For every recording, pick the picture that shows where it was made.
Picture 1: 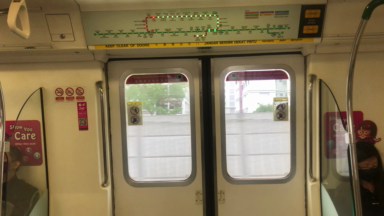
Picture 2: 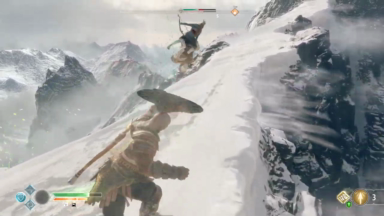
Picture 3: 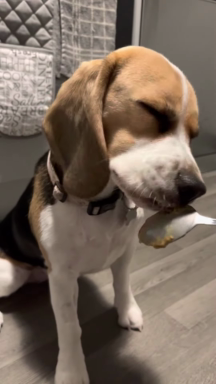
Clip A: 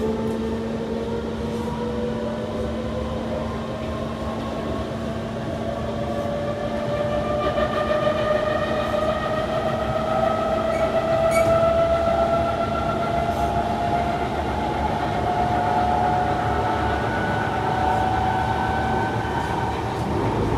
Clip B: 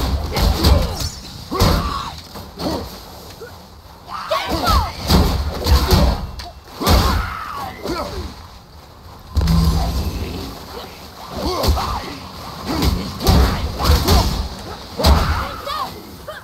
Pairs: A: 1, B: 2